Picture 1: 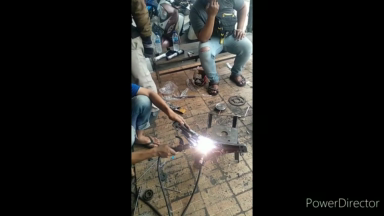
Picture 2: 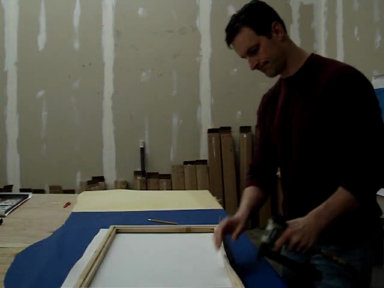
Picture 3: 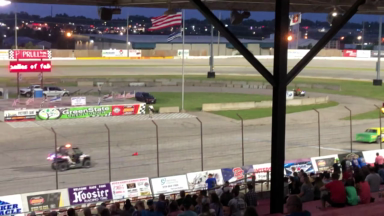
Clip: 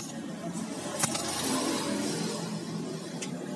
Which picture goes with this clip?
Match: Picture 1